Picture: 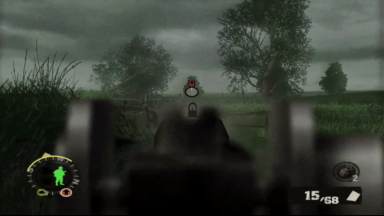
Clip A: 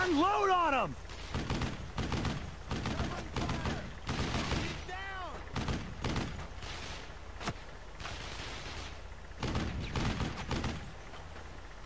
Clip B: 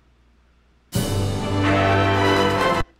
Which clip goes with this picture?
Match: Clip A